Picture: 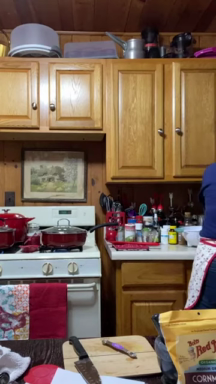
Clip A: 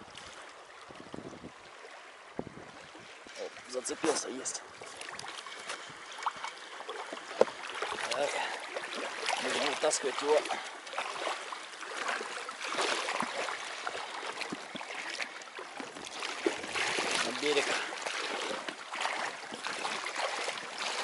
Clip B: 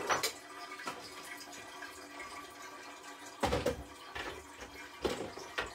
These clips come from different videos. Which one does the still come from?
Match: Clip B